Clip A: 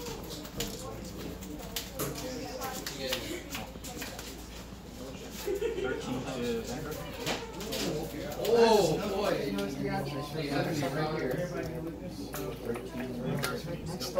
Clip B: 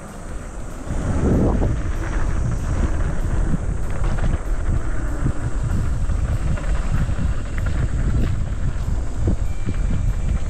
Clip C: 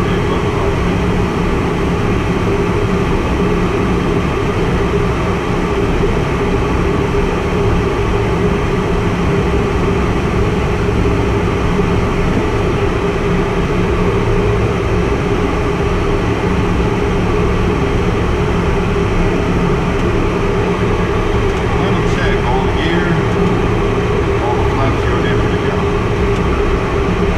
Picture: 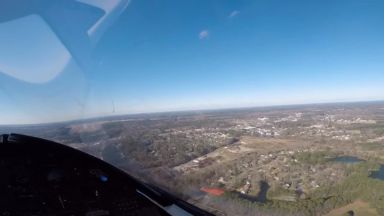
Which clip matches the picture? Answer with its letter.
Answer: C